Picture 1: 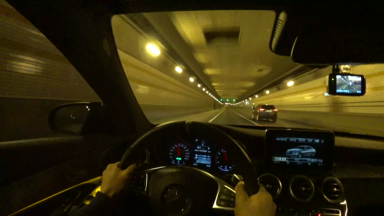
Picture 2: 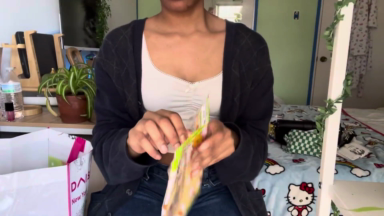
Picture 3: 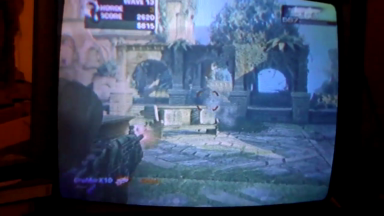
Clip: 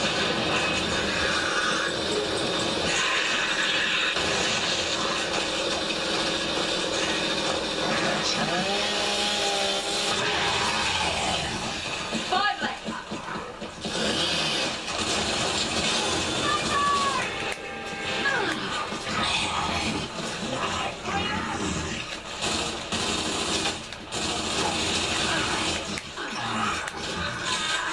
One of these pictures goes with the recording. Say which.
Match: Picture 3